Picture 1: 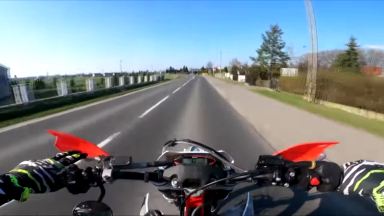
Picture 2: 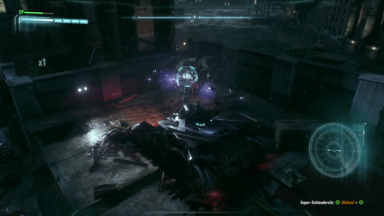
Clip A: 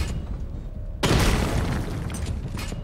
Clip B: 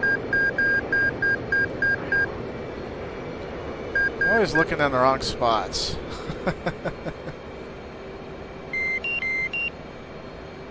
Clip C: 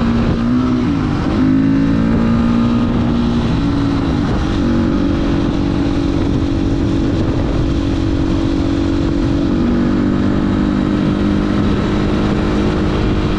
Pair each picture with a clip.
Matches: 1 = C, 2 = A